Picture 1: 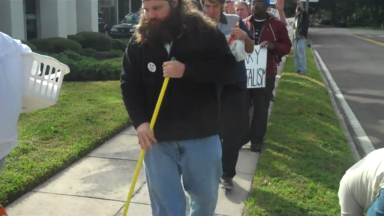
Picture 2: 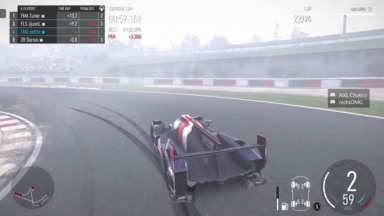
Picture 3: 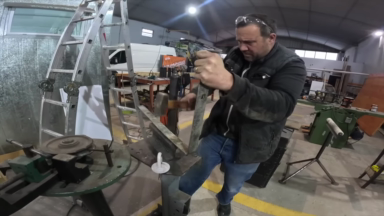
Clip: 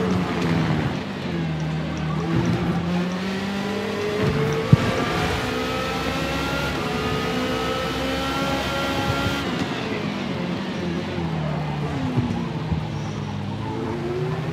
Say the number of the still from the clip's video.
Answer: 2